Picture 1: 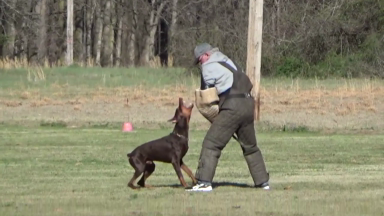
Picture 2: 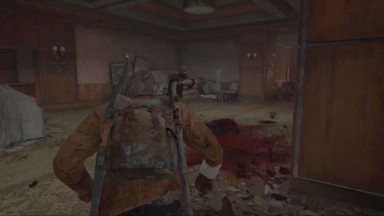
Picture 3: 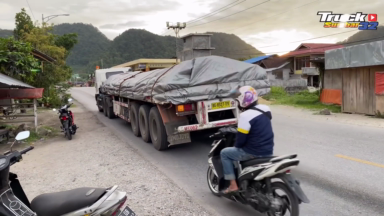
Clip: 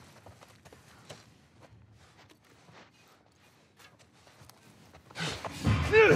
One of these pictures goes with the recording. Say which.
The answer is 2